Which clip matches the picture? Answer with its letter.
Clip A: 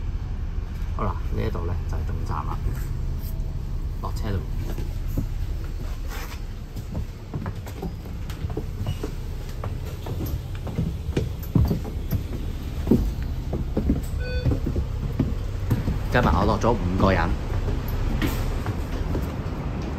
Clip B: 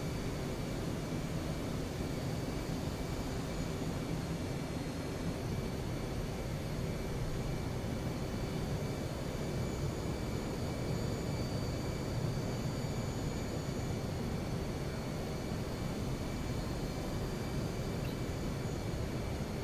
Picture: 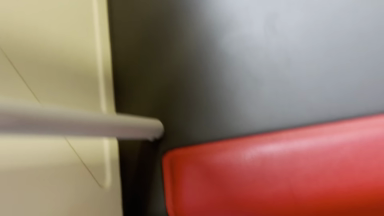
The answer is A